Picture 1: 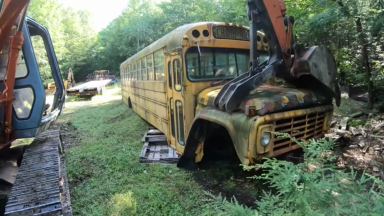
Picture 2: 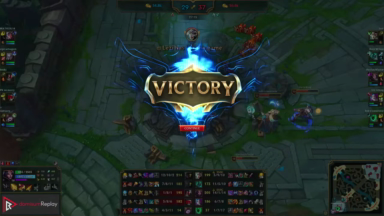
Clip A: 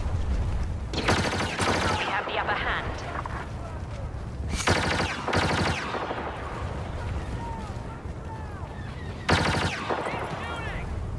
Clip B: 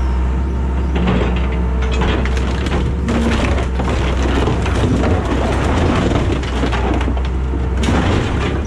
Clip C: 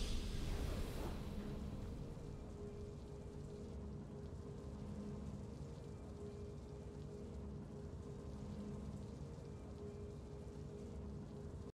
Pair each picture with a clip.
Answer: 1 B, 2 C